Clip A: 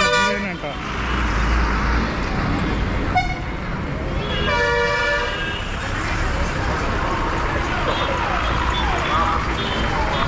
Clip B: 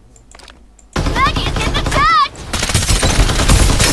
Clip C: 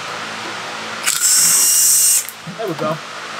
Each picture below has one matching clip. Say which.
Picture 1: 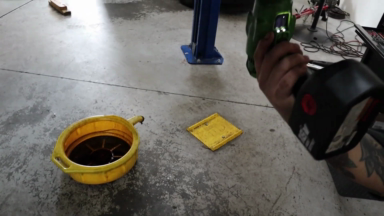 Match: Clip C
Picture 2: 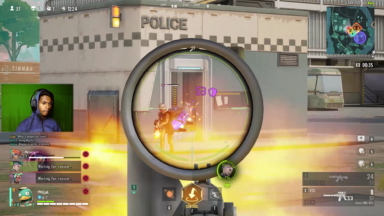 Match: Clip B